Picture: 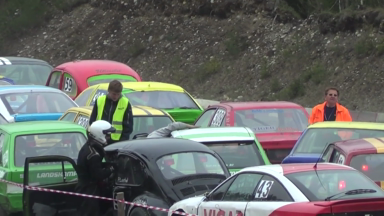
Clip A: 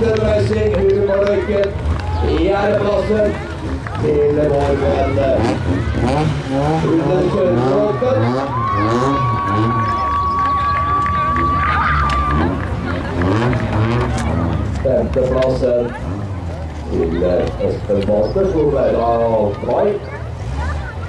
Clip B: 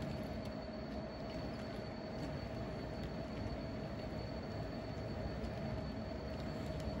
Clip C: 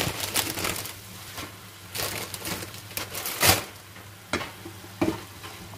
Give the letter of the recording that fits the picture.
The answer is A